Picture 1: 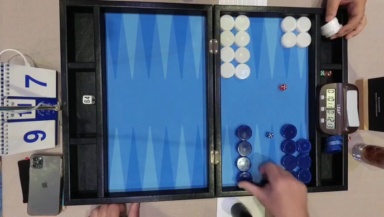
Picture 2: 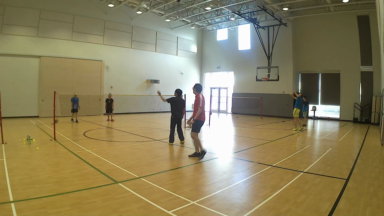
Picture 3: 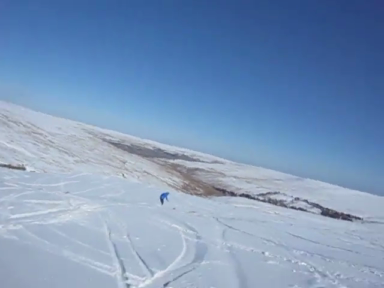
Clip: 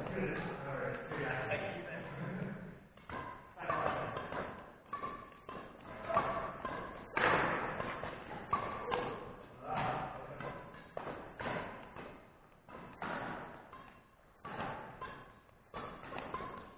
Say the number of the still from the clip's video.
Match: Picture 2